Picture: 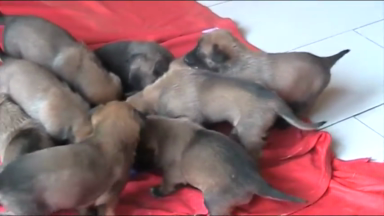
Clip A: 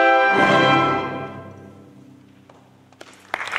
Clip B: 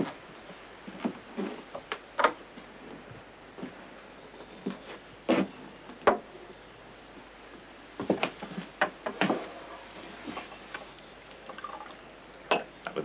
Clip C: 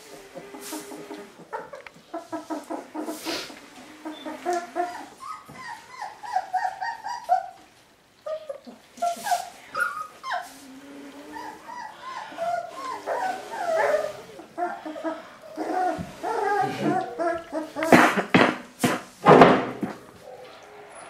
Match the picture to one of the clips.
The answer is C